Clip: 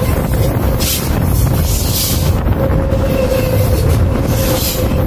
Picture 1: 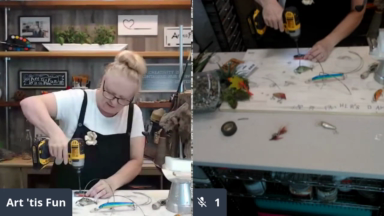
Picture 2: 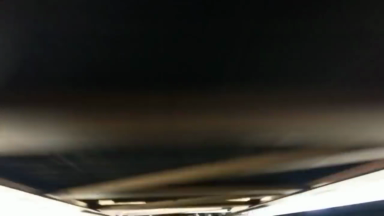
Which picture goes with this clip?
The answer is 2